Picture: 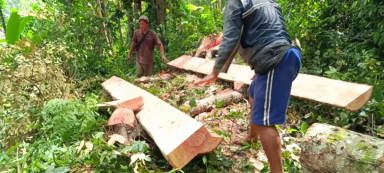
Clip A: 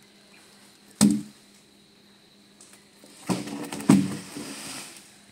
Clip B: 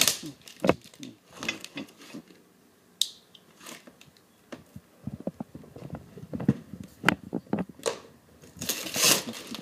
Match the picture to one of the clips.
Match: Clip A